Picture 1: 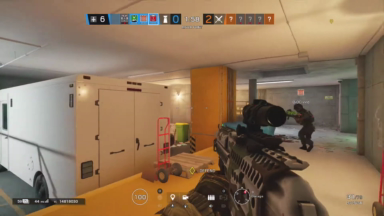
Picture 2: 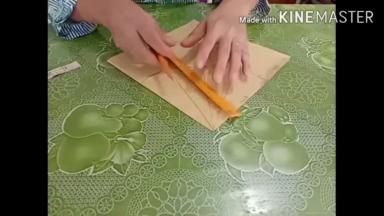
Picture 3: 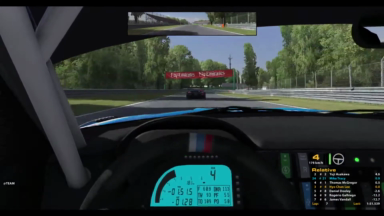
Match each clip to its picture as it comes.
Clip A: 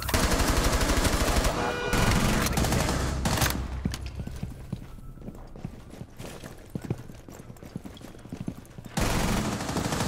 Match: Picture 1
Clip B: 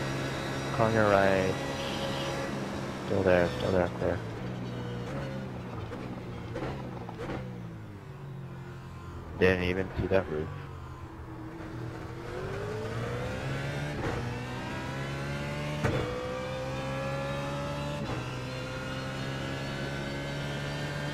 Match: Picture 3